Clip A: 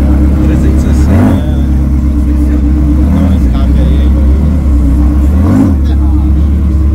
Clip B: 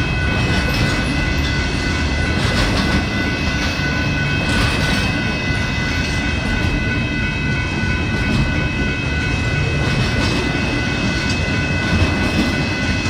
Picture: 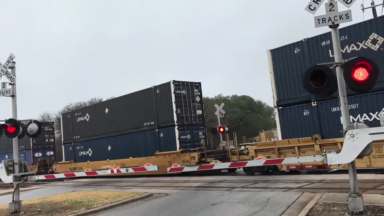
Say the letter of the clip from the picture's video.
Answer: B